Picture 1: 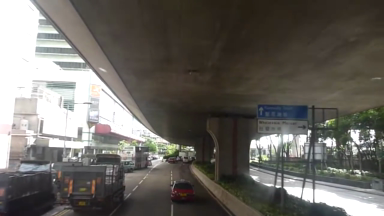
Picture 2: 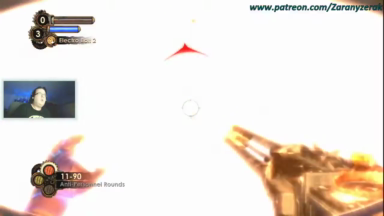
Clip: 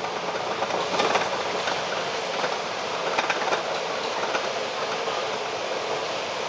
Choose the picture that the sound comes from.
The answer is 1